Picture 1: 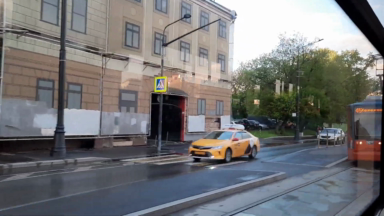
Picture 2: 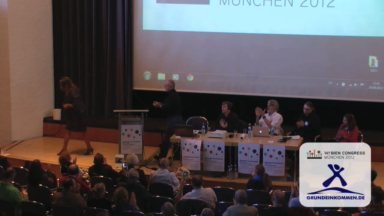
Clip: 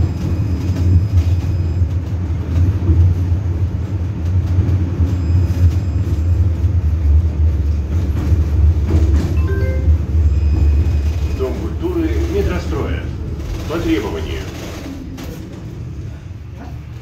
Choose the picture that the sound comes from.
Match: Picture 1